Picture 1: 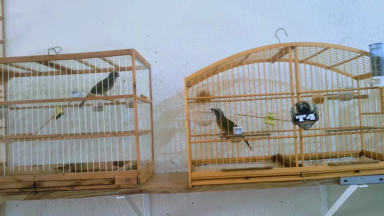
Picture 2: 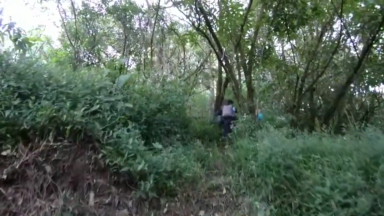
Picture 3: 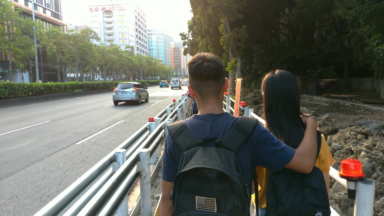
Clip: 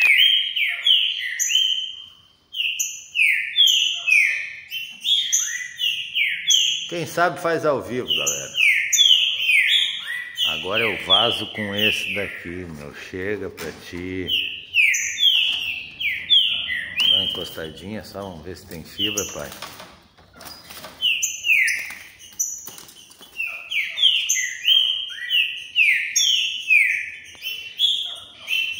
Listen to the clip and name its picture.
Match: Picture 1